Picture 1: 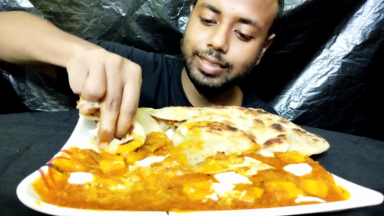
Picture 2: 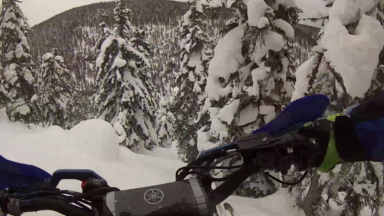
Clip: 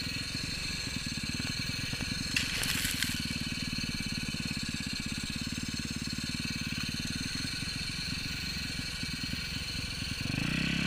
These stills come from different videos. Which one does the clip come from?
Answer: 2